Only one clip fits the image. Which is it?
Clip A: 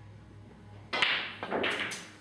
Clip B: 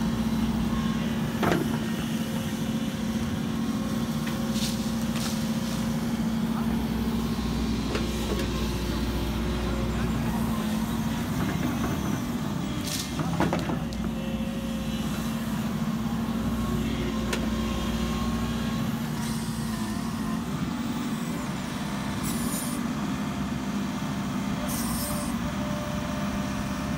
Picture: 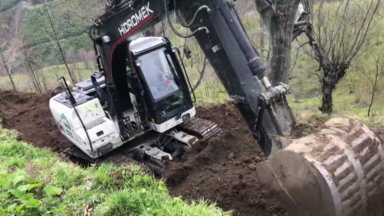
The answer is B